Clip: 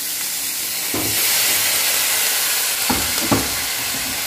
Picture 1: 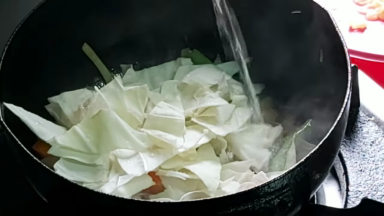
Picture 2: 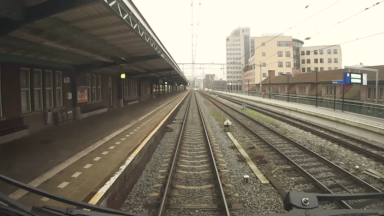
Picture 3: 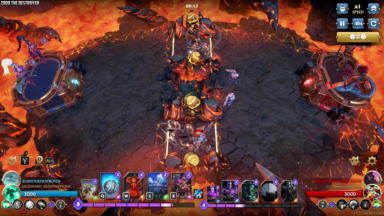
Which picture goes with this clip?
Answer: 1